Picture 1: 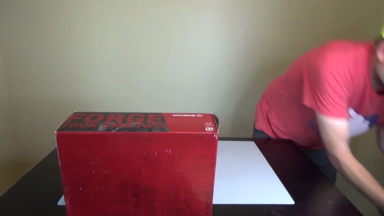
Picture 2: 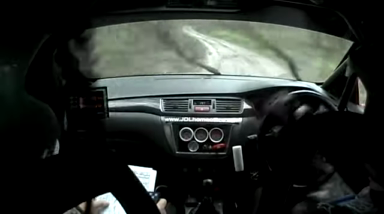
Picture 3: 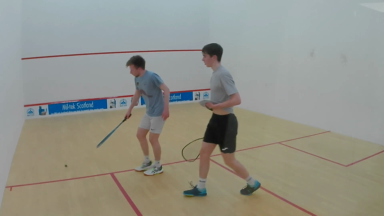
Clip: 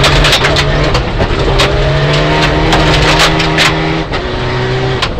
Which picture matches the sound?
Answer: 2